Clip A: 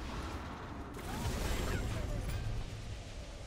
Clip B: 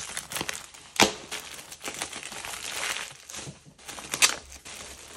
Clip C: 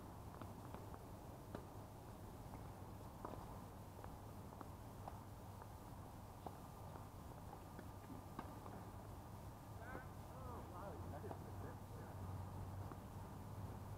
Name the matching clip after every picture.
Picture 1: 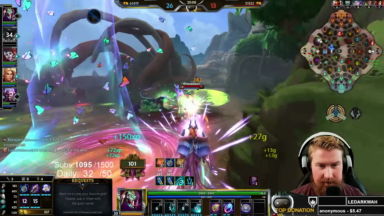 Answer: A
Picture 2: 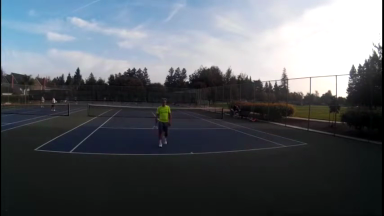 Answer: C